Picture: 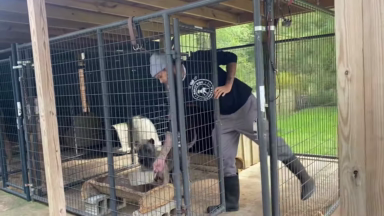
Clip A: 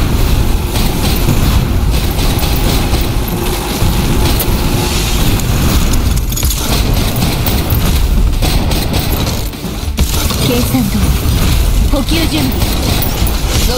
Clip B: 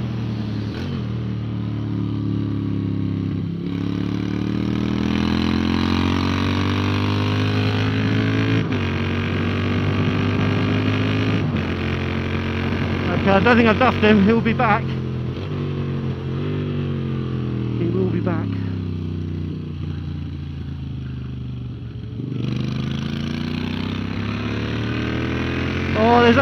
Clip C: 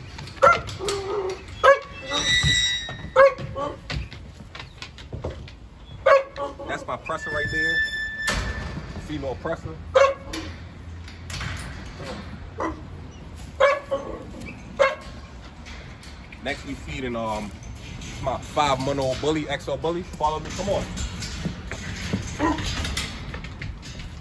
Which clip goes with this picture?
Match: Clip C